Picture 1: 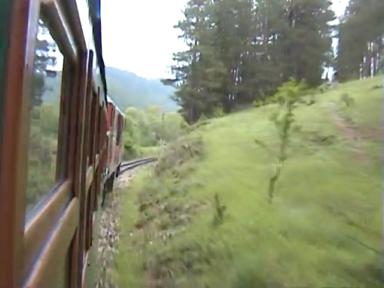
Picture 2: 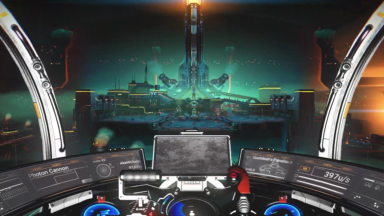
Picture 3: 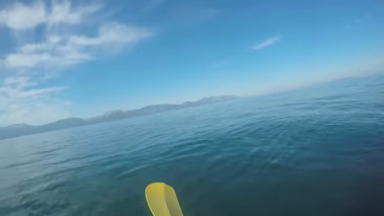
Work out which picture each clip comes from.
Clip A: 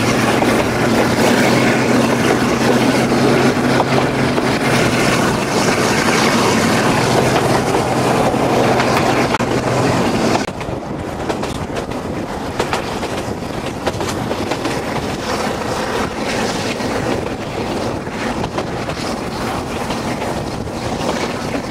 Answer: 1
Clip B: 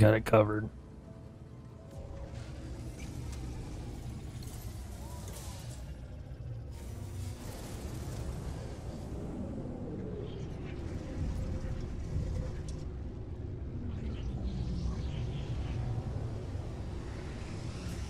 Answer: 2